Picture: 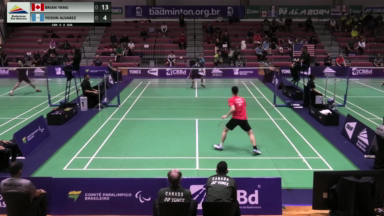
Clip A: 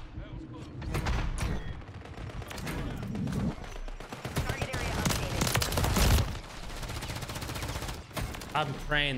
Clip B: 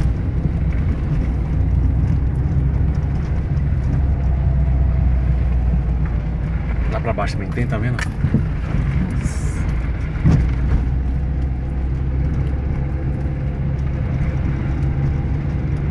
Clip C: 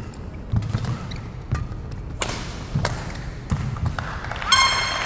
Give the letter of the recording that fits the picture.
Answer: C